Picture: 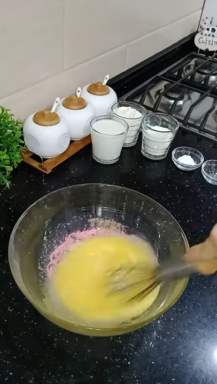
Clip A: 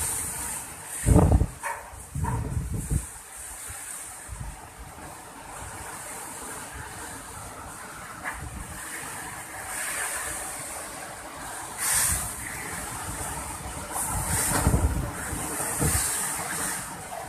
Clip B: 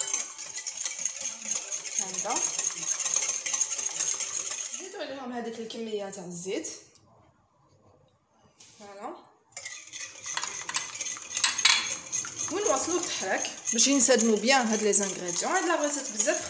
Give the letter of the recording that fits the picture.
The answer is B